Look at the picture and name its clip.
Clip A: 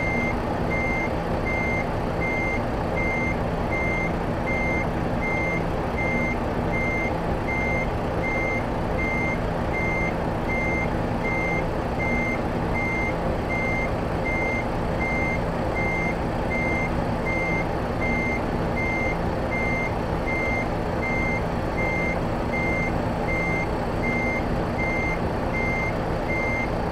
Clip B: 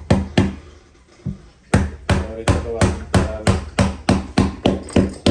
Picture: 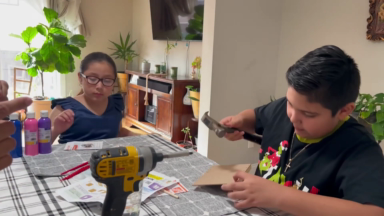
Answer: B